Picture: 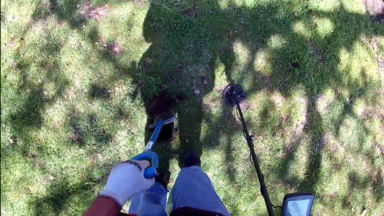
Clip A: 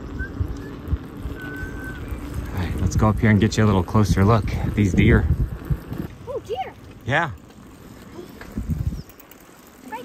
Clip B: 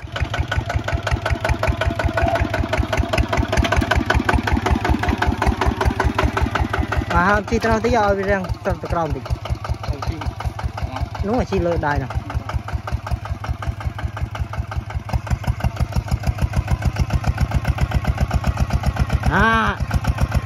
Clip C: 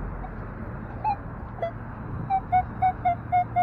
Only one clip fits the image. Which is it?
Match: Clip C